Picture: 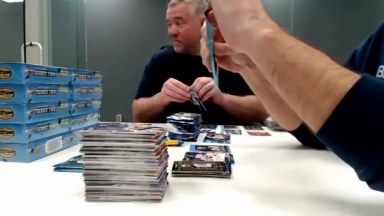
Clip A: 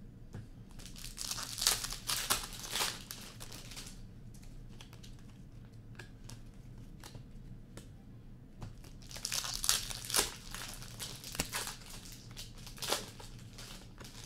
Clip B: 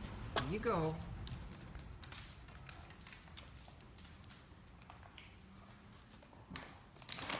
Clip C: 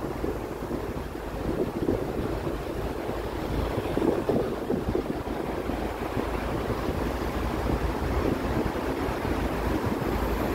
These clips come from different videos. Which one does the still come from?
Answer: A